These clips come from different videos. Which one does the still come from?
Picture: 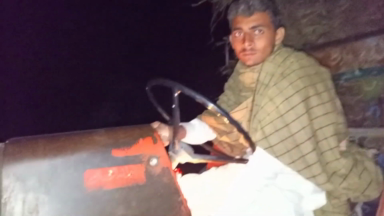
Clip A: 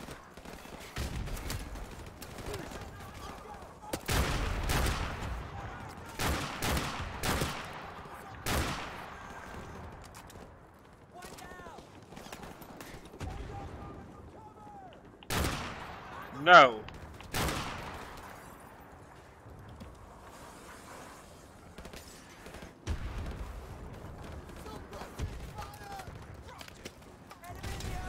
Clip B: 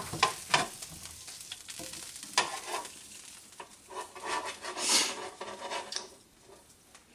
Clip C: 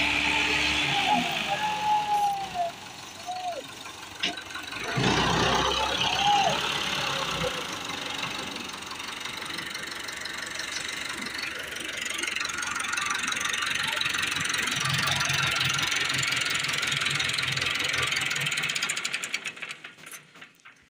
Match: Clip C